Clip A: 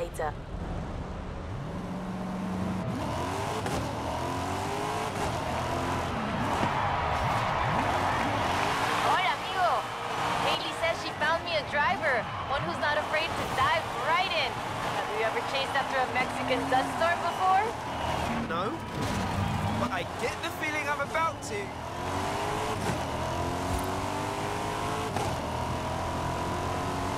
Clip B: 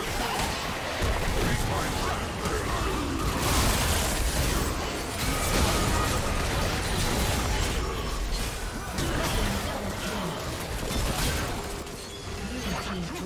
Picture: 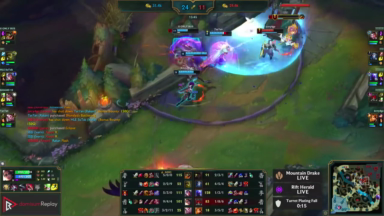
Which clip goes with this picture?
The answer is B